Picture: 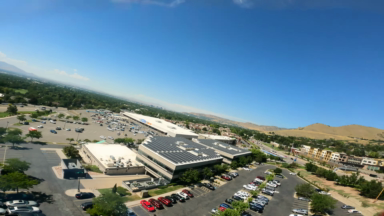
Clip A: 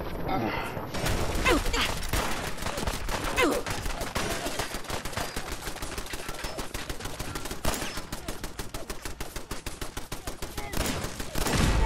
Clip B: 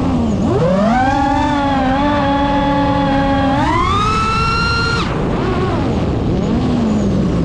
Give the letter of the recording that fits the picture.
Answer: B